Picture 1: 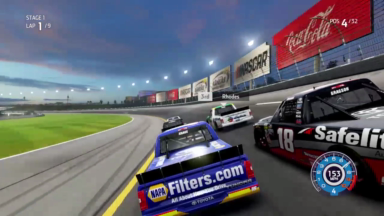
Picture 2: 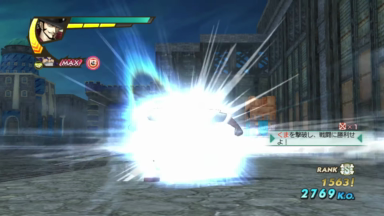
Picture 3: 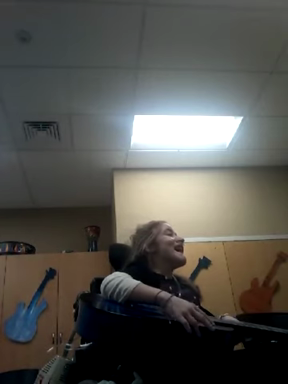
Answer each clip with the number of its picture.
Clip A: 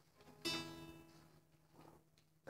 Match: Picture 3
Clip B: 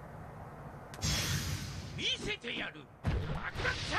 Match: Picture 2